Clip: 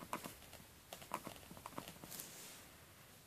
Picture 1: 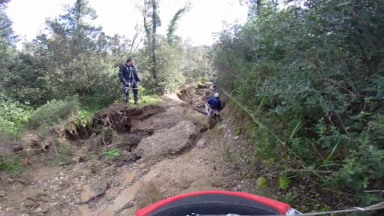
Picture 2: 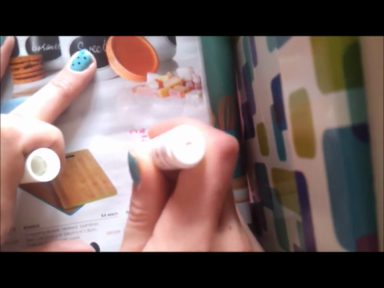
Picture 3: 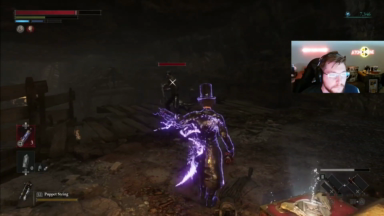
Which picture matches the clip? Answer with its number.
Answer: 2